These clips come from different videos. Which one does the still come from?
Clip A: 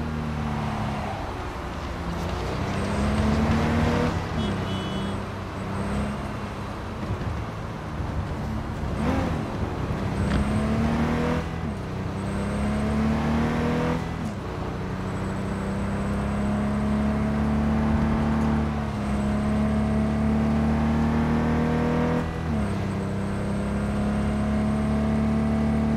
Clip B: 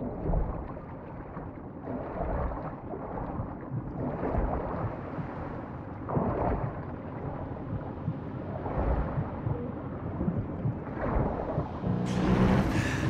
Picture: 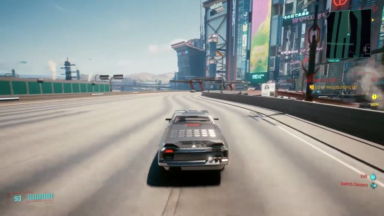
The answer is A